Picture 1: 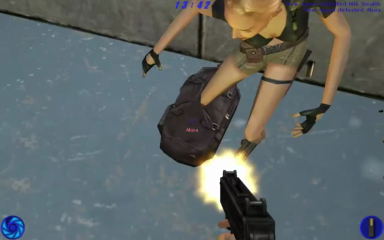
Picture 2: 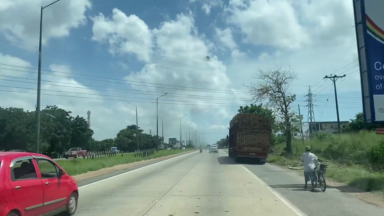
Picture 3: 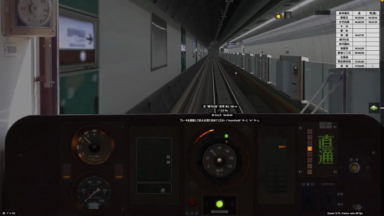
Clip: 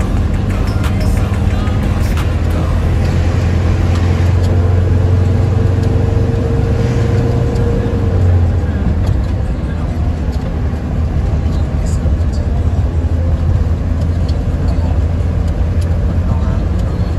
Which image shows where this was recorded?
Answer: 2